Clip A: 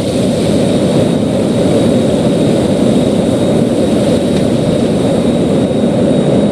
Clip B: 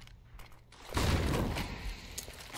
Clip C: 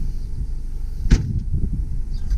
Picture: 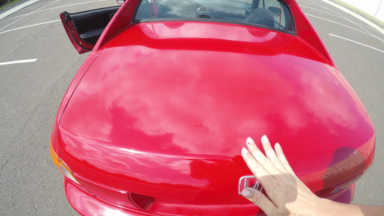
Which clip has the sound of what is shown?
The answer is C